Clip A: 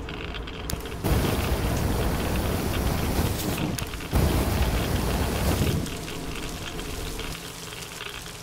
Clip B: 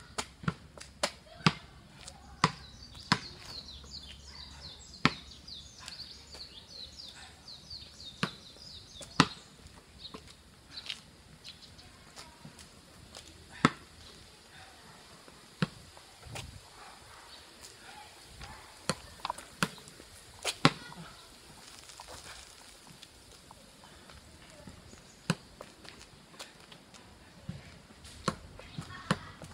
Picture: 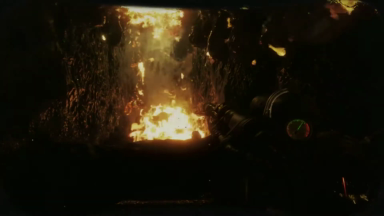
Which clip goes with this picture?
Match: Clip A